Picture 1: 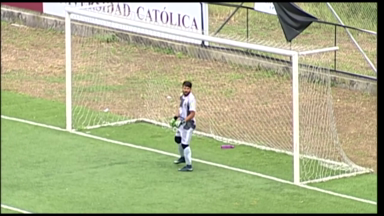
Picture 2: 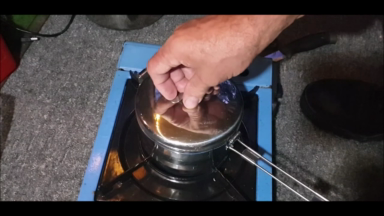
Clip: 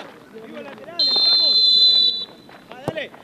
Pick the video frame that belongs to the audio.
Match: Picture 1